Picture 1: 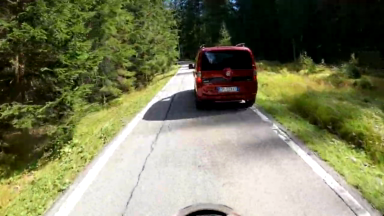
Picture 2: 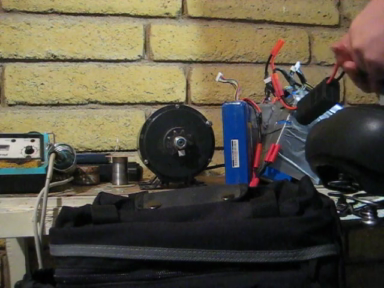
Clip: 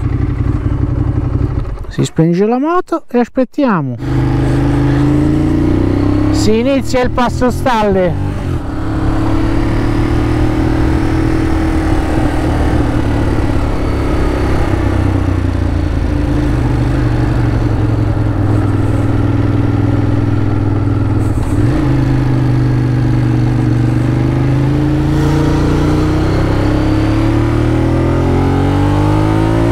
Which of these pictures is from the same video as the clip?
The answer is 1